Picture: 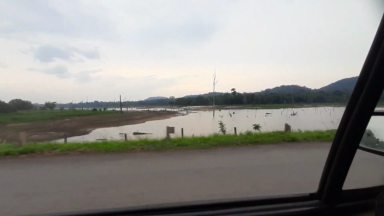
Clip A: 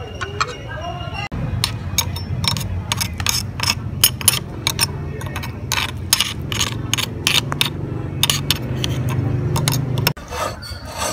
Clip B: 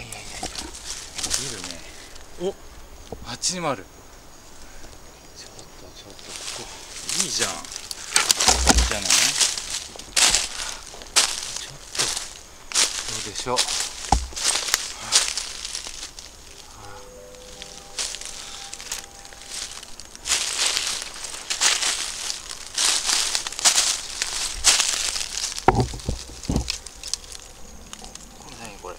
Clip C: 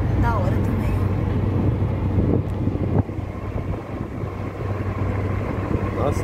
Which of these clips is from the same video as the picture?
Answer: C